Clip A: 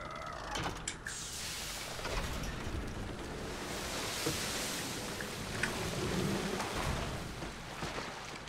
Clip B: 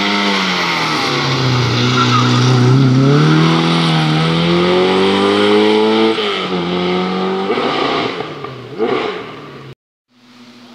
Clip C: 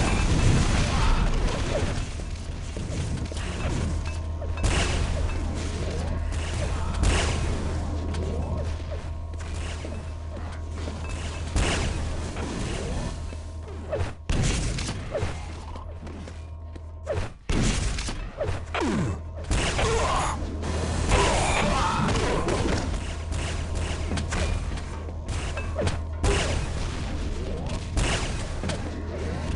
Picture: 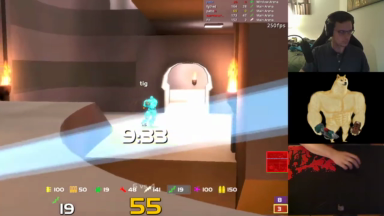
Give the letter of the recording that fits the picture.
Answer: C